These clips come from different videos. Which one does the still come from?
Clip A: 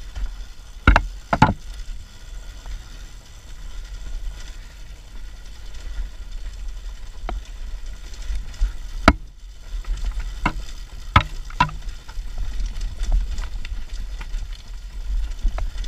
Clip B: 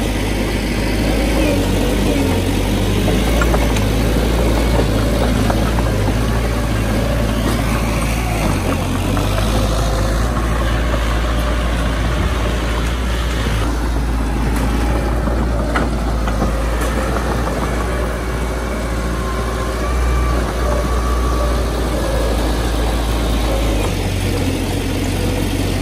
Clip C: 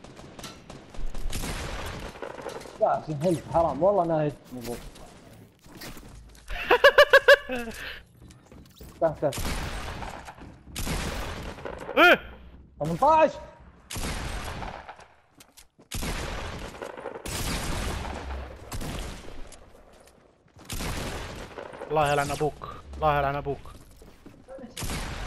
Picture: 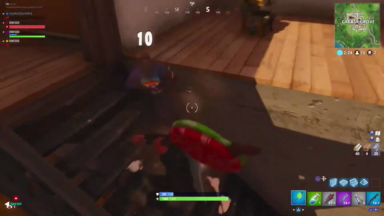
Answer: C